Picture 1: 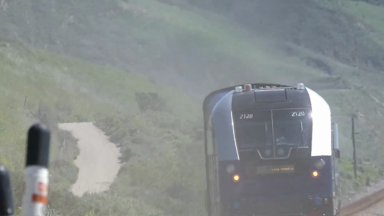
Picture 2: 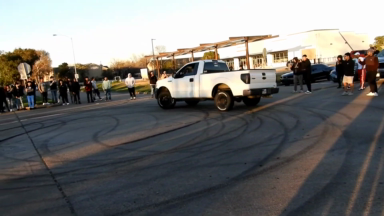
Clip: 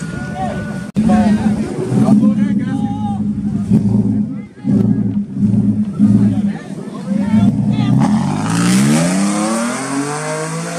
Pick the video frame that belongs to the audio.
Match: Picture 2